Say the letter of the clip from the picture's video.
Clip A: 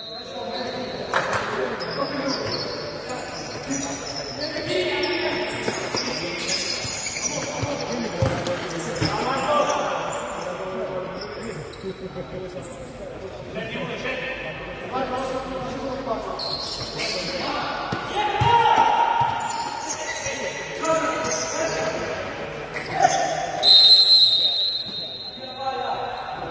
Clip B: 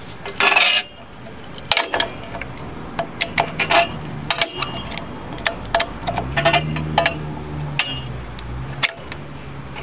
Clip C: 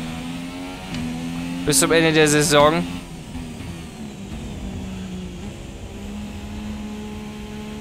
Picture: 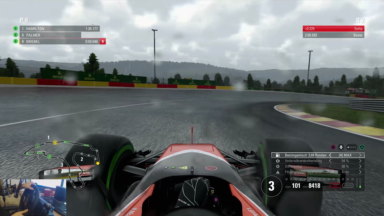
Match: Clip C